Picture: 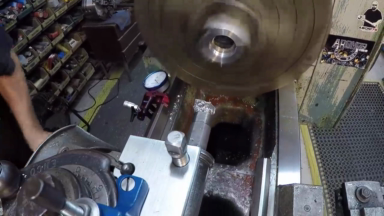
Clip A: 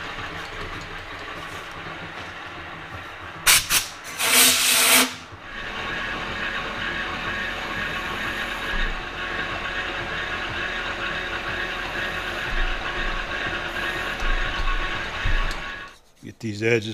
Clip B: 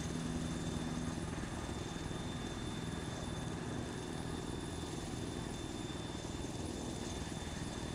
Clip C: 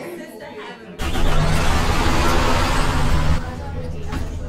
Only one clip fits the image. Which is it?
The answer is A